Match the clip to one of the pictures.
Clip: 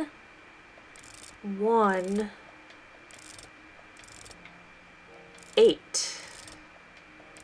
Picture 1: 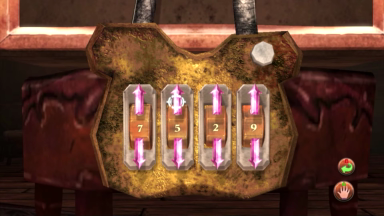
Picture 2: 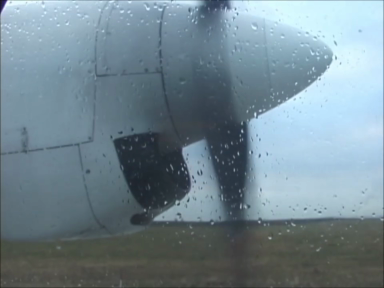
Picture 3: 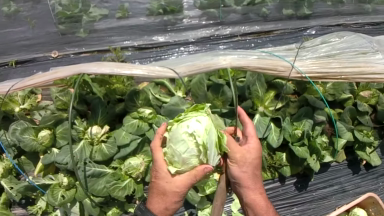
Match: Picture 1